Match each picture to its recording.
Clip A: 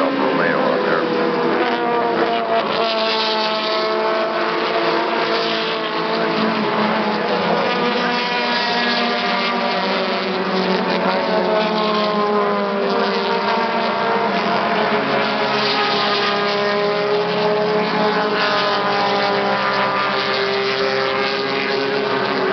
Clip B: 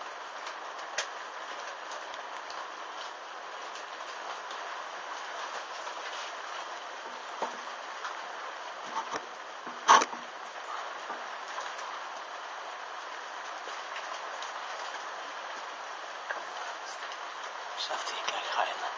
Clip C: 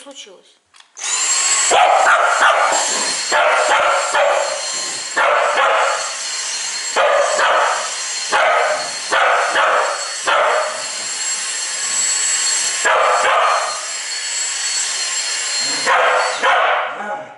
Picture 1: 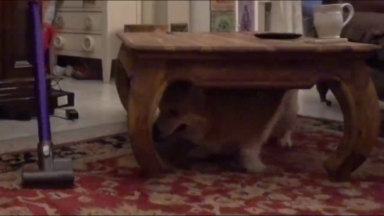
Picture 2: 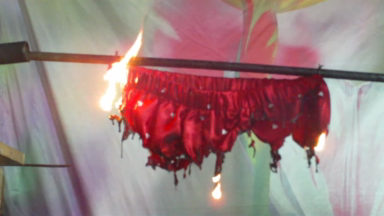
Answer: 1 C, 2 B